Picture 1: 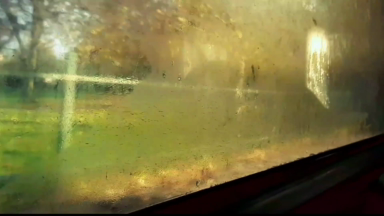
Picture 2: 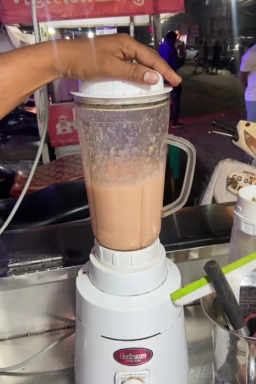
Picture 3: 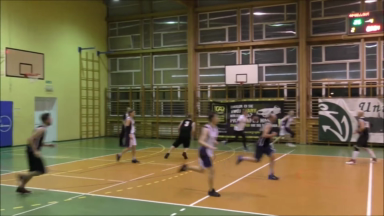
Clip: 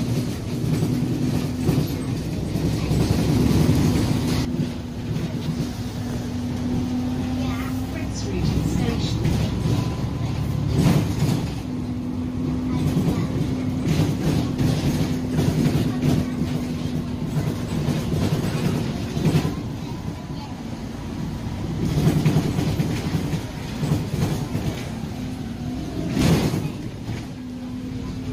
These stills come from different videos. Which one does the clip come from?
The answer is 1